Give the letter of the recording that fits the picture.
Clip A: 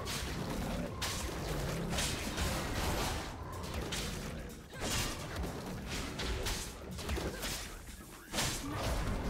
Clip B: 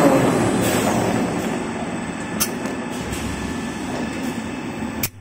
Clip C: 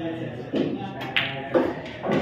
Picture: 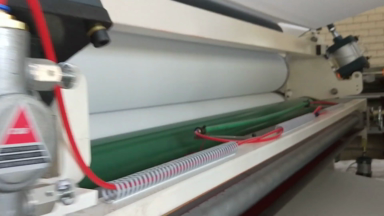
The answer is B